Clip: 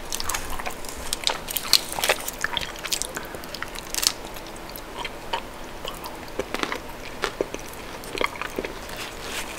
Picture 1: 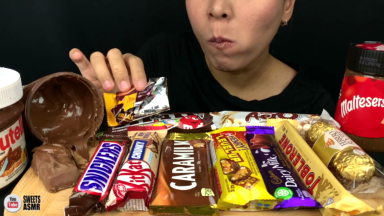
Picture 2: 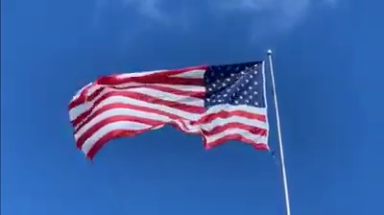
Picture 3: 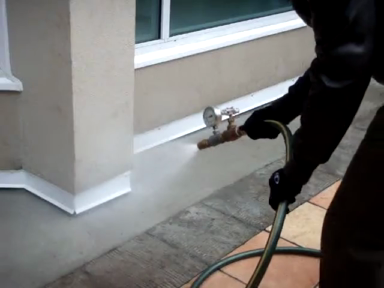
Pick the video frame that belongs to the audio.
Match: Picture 1